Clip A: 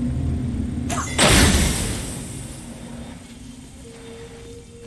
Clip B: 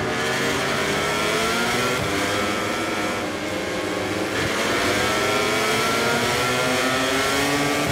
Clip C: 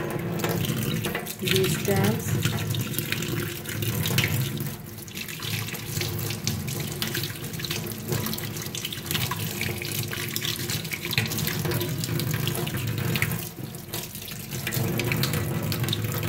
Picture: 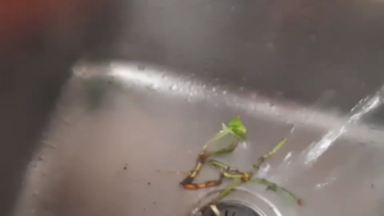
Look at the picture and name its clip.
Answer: C